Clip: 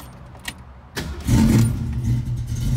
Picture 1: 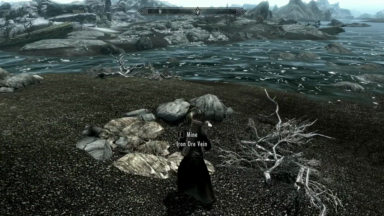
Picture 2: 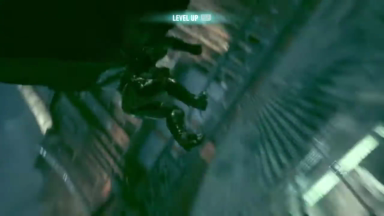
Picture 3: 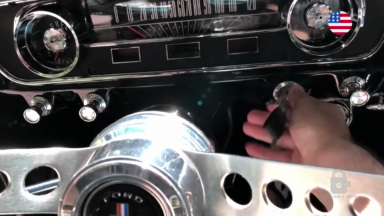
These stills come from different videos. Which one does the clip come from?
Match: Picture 3